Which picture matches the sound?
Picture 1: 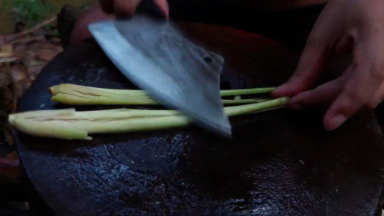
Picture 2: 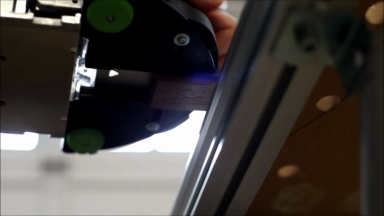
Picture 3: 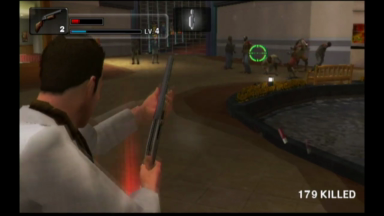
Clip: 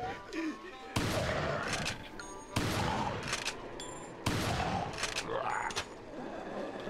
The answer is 3